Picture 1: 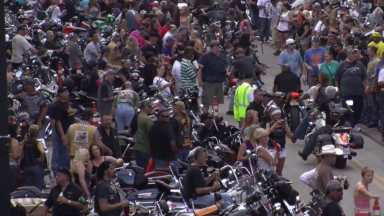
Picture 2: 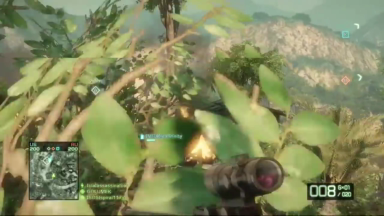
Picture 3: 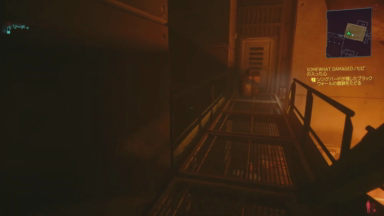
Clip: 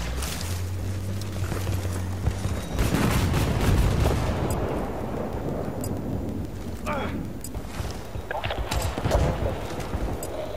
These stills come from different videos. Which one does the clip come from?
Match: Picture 2